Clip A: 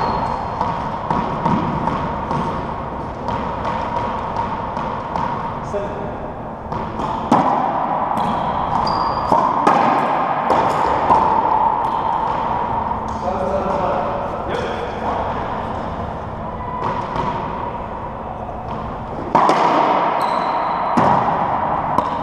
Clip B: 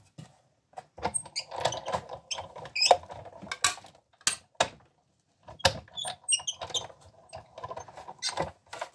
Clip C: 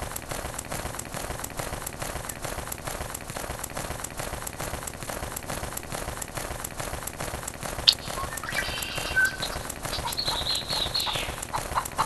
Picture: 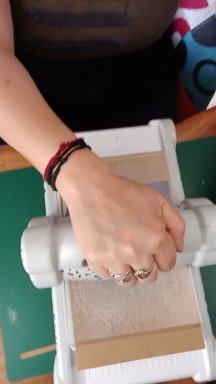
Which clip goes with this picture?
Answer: B